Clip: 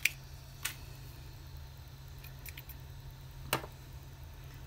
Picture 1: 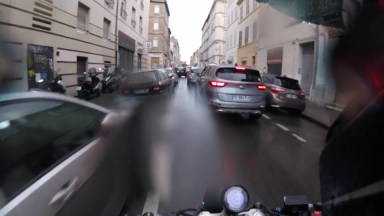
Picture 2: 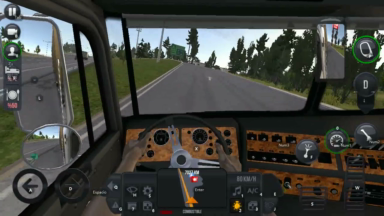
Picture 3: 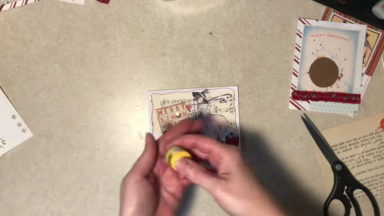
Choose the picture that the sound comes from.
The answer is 3